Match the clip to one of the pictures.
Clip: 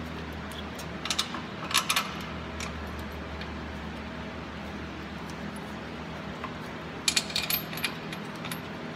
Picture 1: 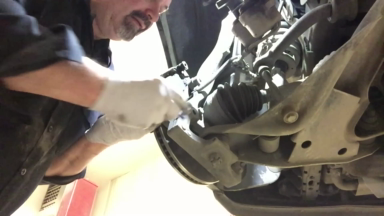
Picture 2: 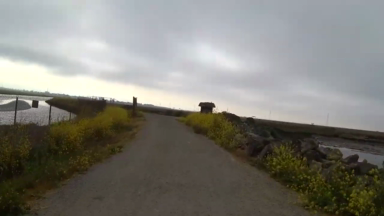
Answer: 1